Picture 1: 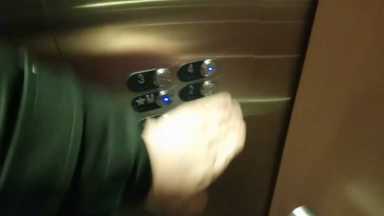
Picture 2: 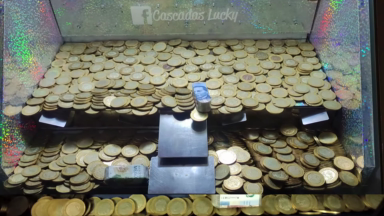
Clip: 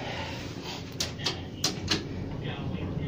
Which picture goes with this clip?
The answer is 1